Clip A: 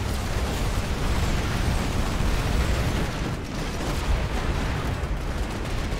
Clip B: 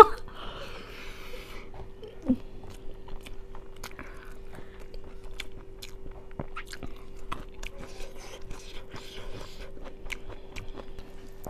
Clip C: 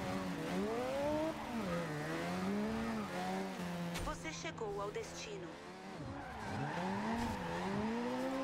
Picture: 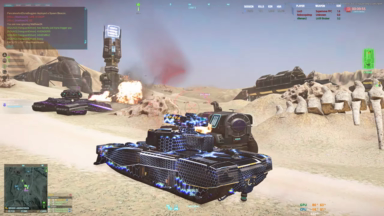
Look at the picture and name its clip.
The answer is A